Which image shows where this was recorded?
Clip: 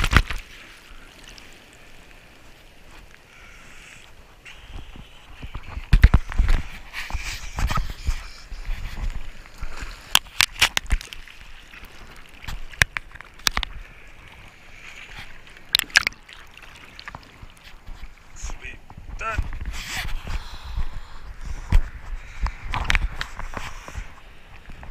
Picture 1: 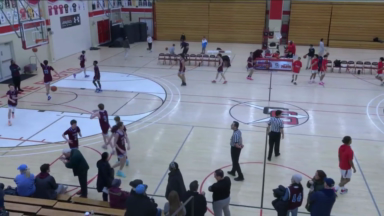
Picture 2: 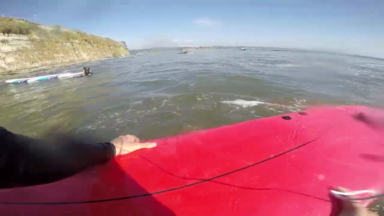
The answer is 2